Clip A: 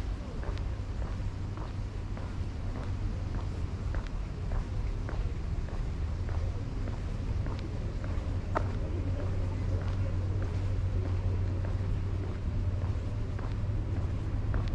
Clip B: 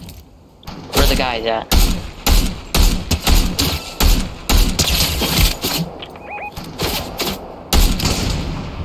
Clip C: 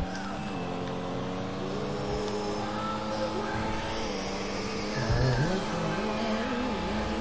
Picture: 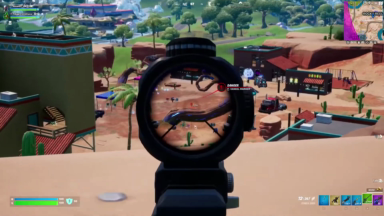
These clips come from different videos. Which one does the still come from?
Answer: B